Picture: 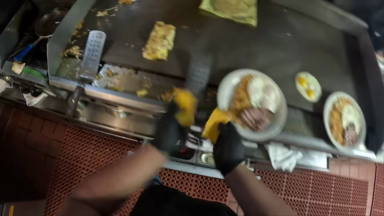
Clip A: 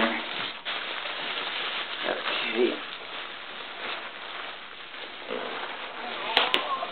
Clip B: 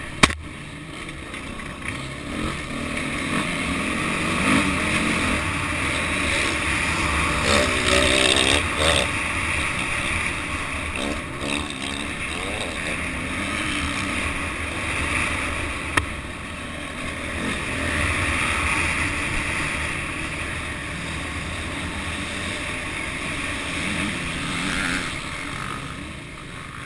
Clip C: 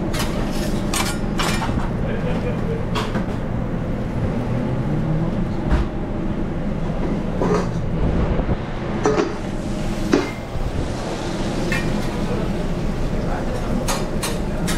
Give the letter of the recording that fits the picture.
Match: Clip C